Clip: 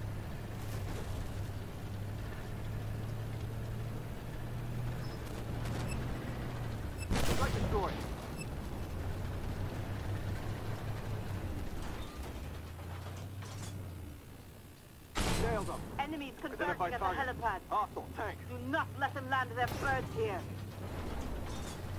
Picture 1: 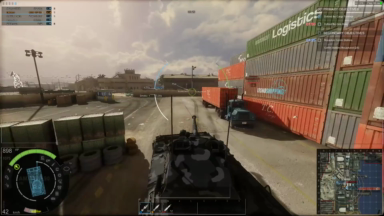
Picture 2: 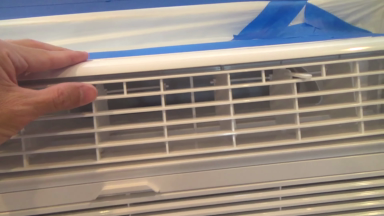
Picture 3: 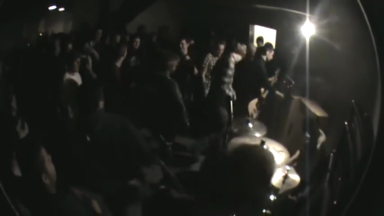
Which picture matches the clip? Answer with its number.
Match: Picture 1